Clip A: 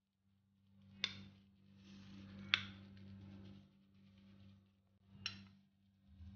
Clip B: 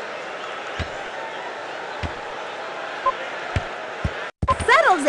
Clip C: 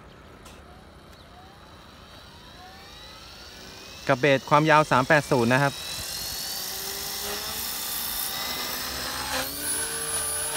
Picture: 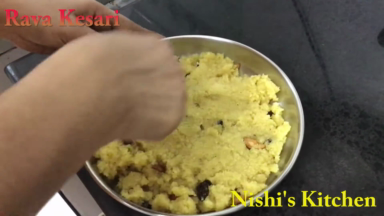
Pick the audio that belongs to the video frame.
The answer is A